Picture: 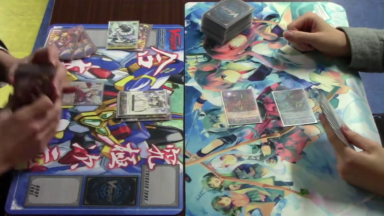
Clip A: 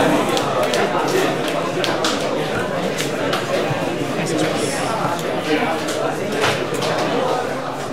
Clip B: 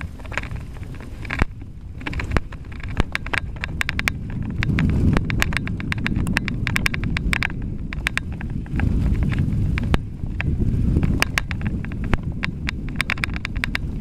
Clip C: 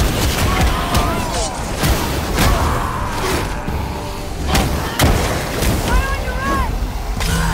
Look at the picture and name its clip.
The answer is A